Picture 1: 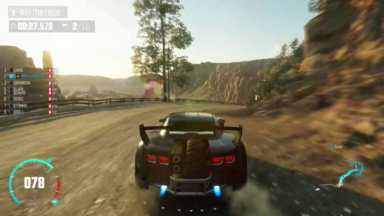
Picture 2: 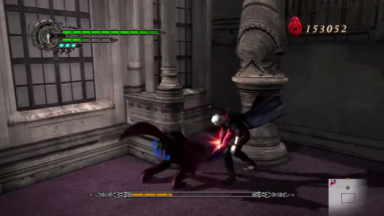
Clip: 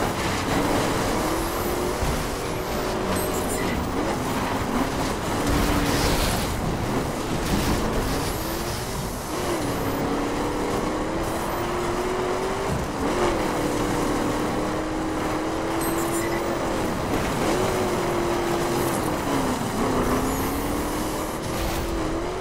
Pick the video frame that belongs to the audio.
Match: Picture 1